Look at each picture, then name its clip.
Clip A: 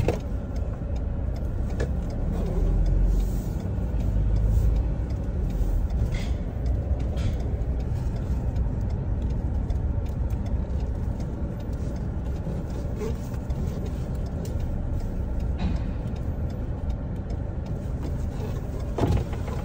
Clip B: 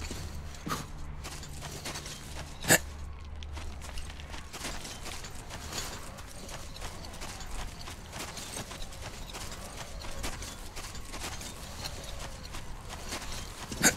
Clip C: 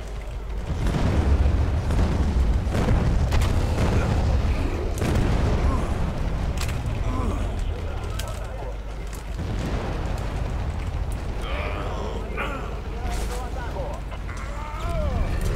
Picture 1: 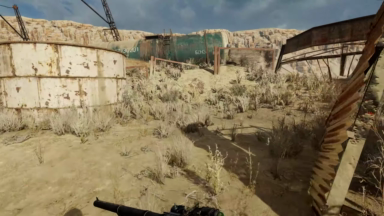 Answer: B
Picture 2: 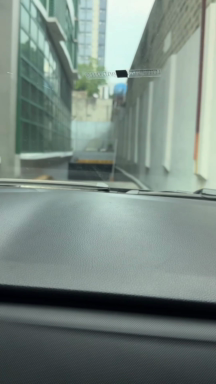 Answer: A